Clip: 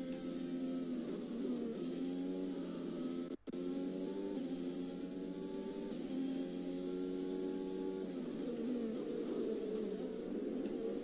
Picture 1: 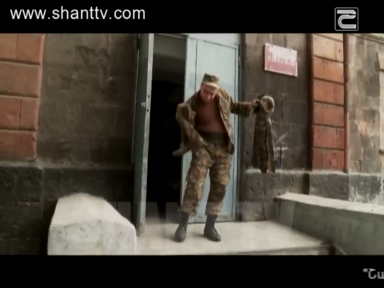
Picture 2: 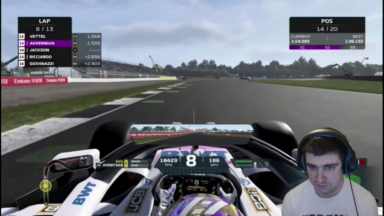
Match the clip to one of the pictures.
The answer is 2